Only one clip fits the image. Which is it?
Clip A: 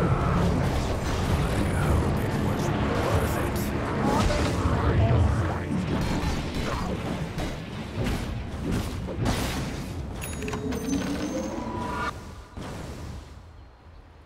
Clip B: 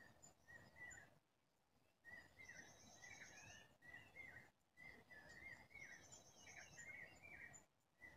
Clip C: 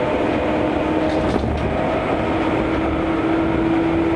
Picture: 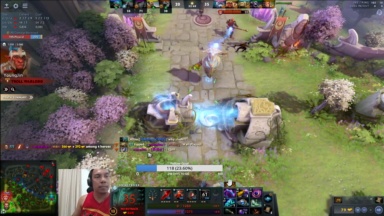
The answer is A